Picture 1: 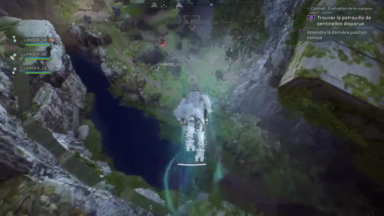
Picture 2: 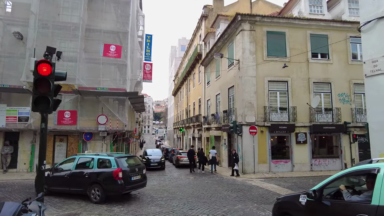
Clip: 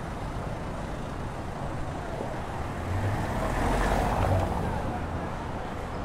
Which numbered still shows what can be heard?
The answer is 2